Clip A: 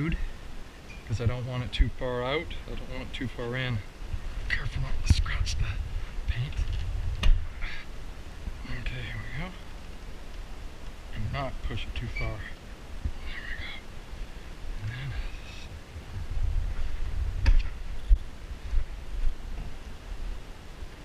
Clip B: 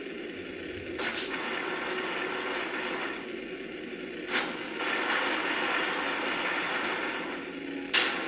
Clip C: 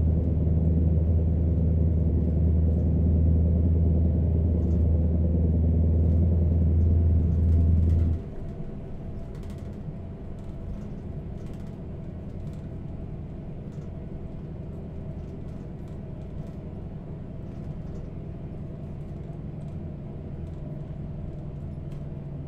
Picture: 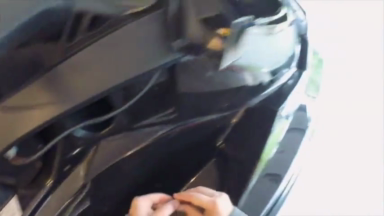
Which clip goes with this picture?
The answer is A